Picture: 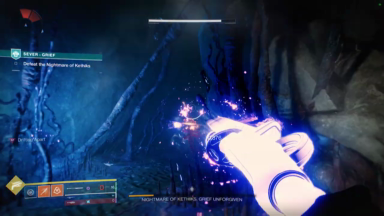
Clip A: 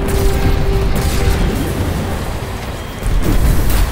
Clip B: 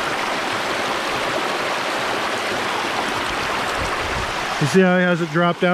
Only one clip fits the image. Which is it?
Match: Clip A